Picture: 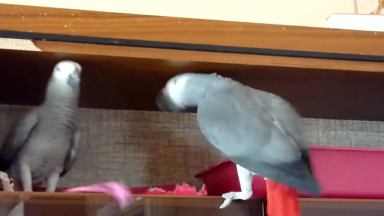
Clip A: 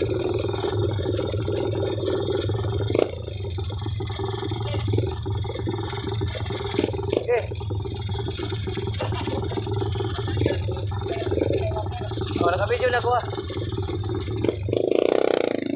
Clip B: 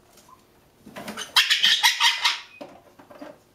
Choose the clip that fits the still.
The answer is B